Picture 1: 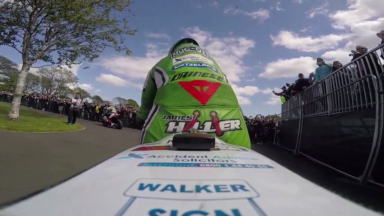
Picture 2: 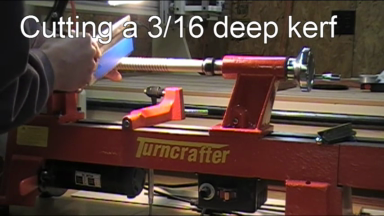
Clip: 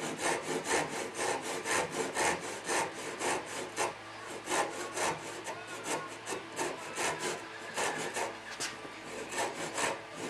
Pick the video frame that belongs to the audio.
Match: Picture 2